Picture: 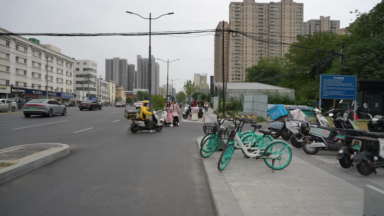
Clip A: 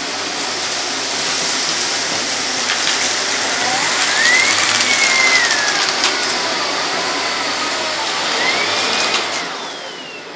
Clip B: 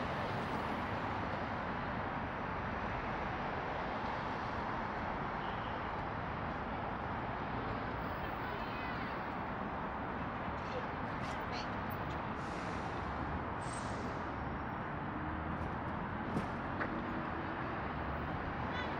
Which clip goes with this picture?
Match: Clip B